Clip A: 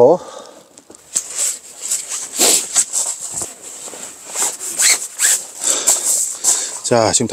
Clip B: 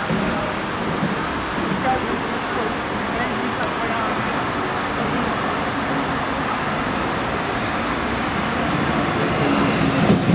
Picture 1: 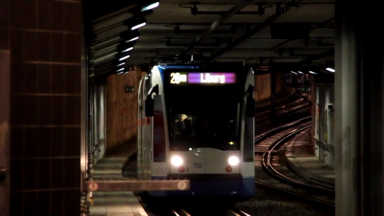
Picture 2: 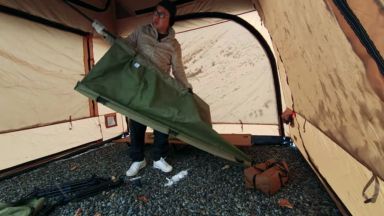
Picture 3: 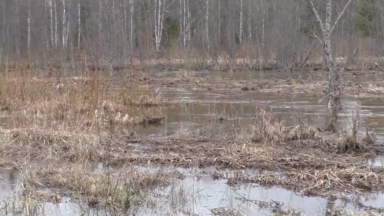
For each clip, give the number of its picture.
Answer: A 2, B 1